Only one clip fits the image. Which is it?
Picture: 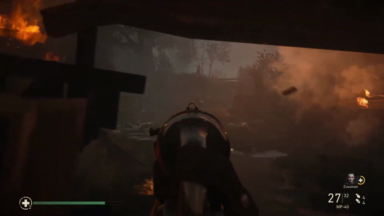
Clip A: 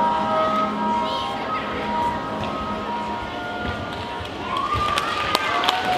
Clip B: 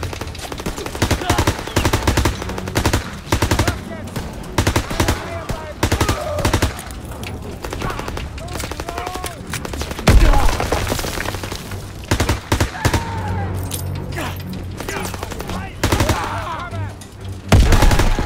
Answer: B